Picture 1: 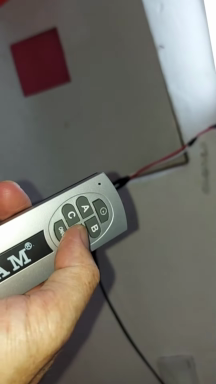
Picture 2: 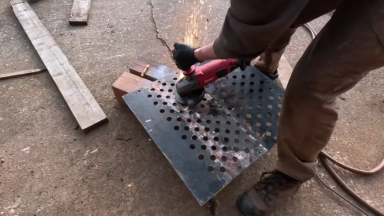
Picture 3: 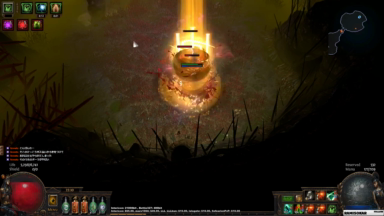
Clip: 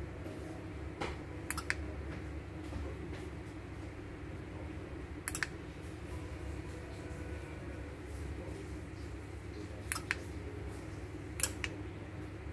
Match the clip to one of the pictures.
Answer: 1